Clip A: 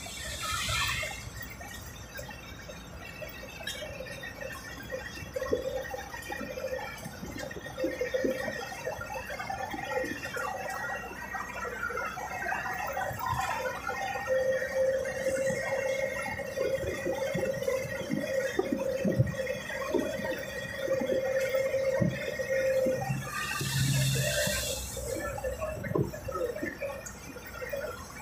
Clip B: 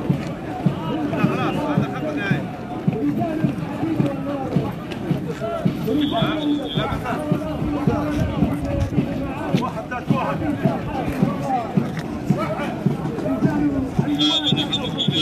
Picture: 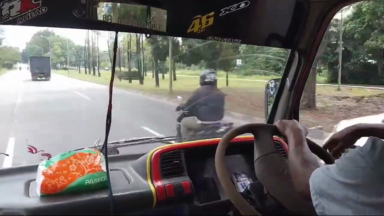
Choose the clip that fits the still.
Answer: A